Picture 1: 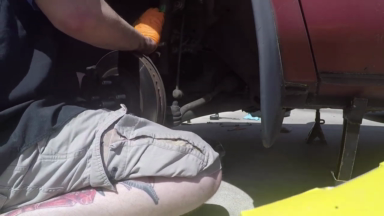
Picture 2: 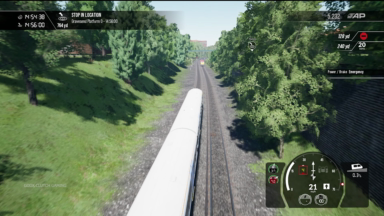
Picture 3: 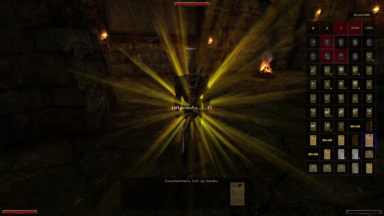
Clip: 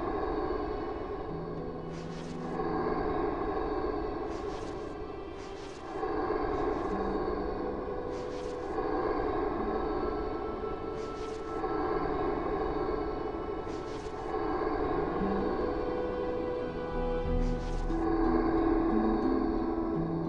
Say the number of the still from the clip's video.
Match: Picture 3